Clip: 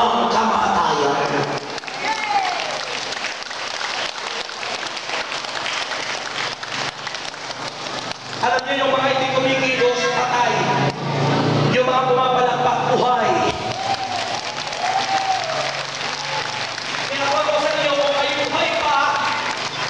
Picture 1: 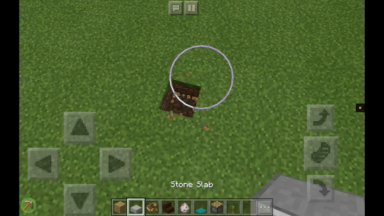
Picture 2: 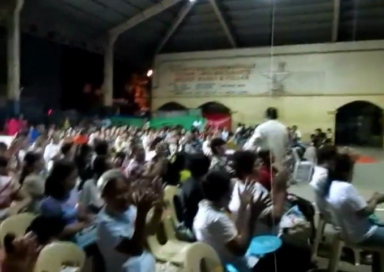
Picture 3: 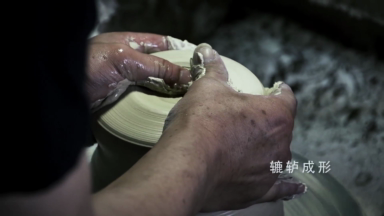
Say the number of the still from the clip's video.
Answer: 2